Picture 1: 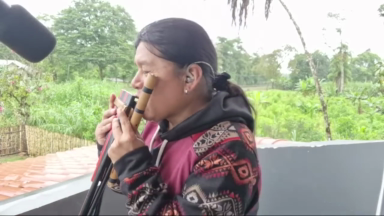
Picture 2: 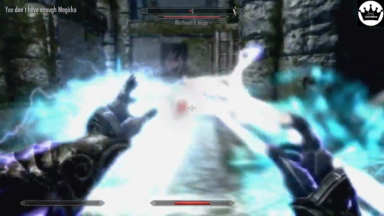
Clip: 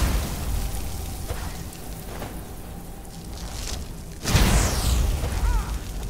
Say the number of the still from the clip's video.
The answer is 2